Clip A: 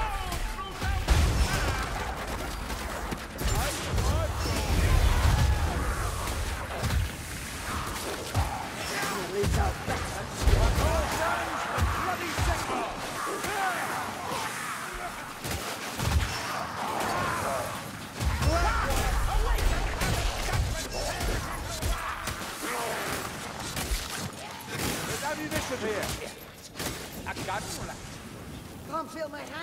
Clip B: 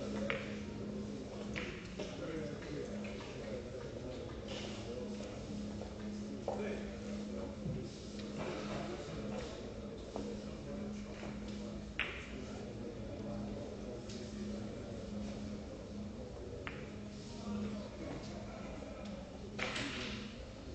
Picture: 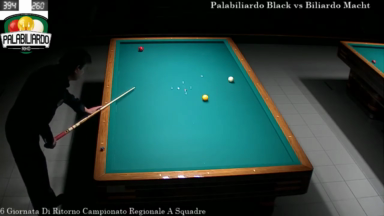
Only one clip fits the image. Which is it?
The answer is B